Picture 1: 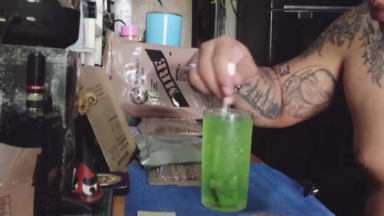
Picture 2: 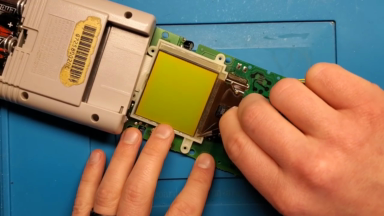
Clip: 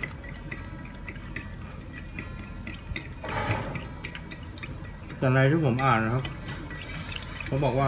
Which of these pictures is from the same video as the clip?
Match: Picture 1